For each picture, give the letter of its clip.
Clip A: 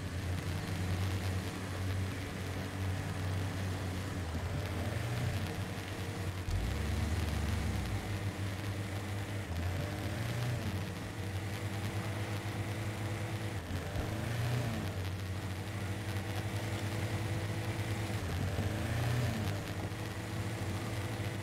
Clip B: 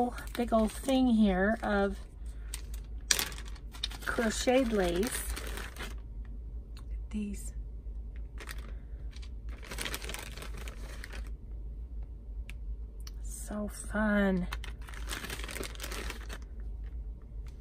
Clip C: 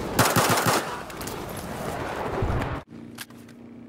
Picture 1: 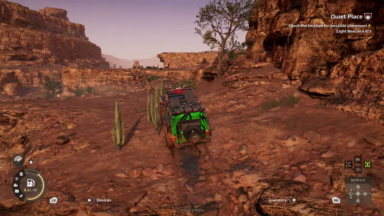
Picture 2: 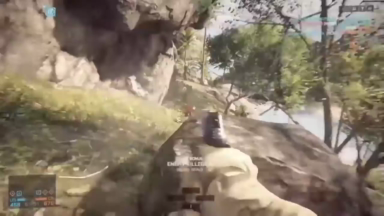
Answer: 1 A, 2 C